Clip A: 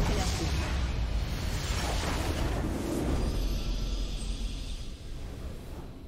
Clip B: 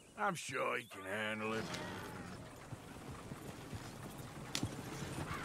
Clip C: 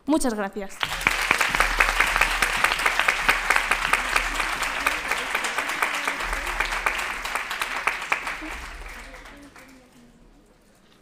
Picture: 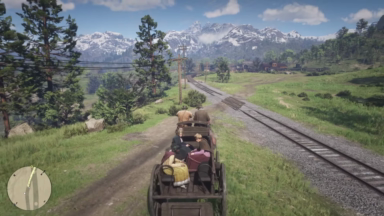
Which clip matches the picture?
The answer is B